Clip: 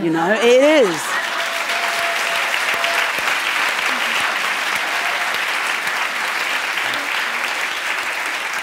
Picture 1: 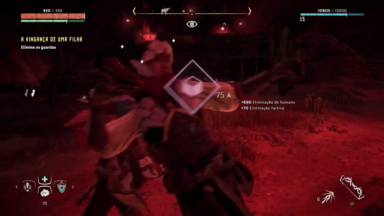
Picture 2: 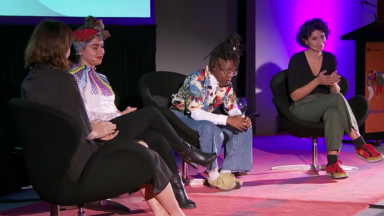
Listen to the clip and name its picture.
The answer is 2